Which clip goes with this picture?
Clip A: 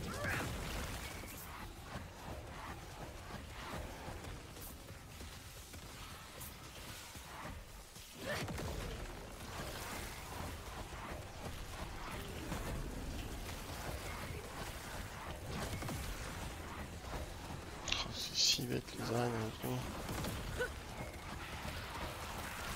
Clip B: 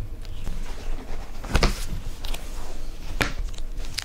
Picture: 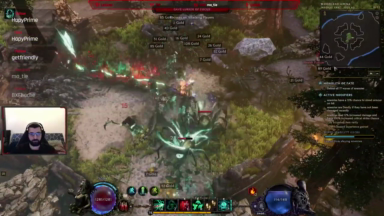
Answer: A